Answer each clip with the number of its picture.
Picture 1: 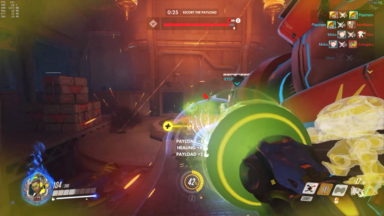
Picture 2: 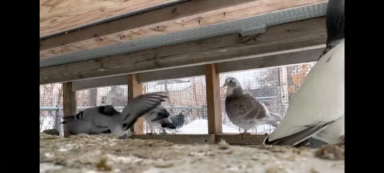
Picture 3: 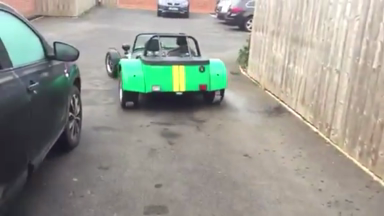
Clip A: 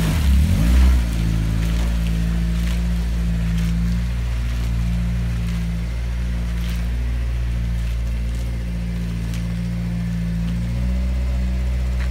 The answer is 3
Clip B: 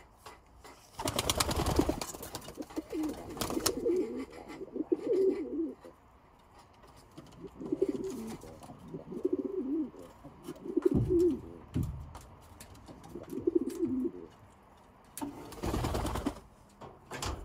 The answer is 2